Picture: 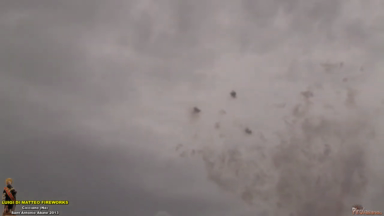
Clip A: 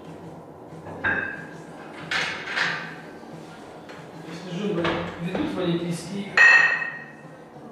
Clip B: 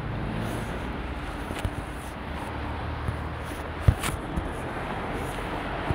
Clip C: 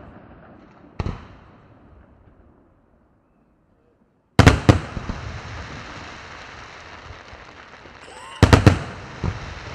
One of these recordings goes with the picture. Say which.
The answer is C